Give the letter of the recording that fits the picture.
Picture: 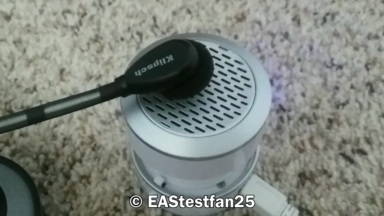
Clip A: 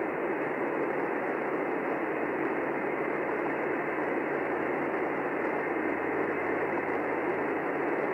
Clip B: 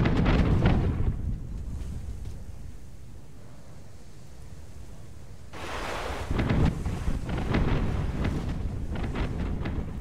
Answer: A